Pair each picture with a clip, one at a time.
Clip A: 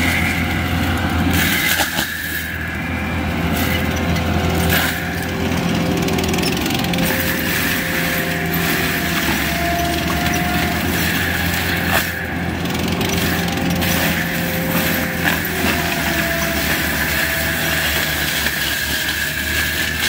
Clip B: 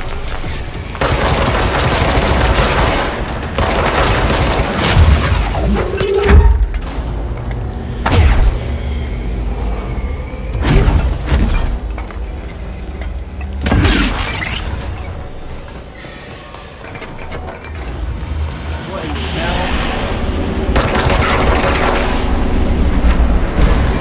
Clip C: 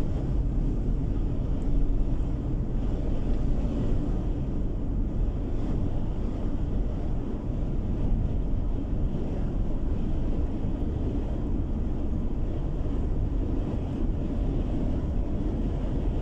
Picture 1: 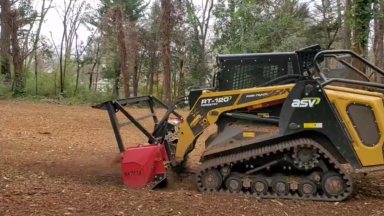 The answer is A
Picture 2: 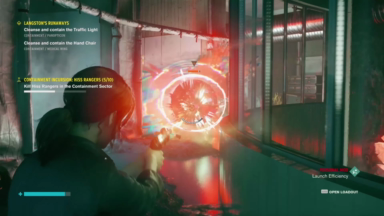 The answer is B